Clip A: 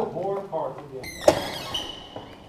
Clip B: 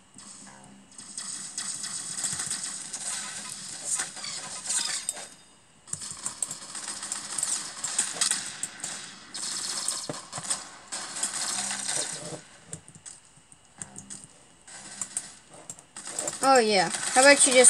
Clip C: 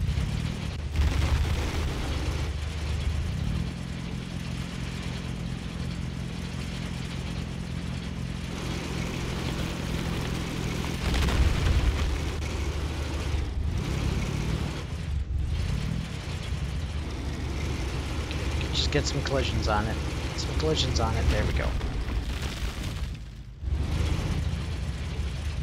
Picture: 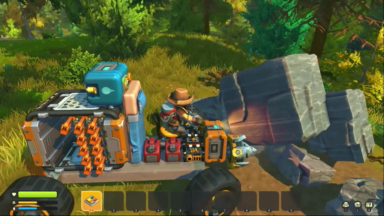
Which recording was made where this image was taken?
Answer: C